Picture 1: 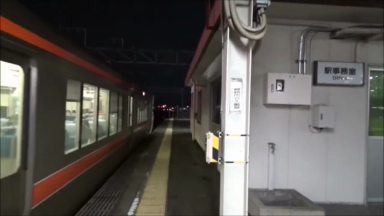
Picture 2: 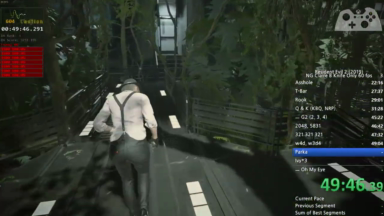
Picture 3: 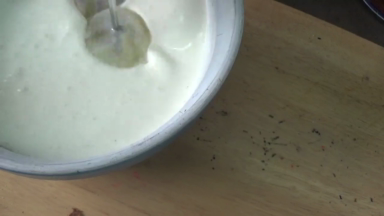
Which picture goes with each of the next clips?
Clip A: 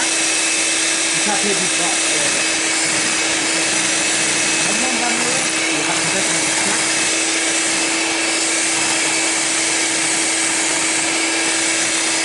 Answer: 3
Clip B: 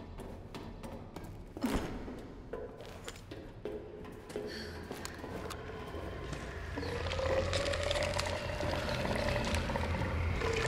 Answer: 2